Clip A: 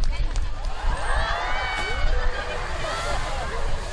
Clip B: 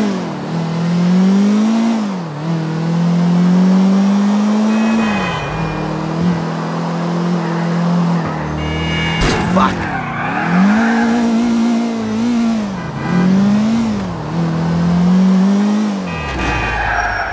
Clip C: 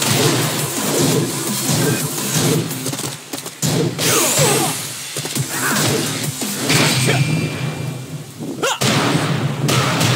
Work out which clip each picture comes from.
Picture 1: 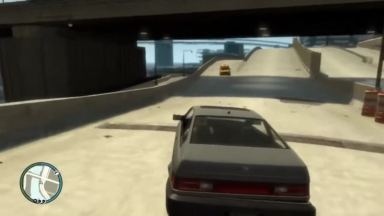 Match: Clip B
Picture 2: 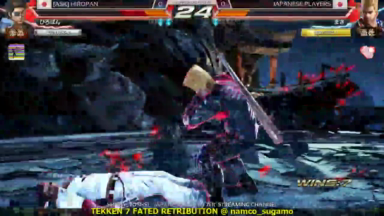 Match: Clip C